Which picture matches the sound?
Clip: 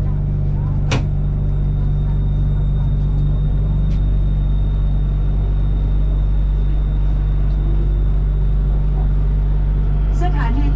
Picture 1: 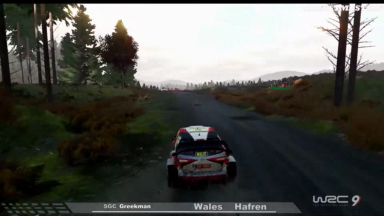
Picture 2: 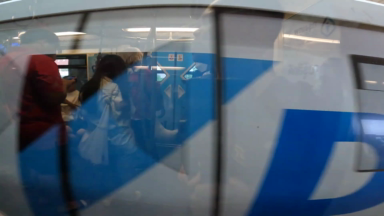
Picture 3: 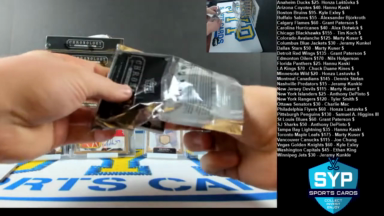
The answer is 2